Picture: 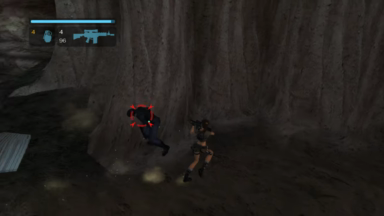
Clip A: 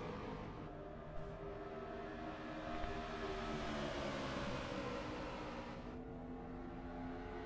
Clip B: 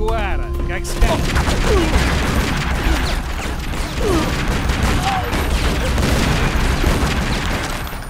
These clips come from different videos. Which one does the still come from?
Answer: B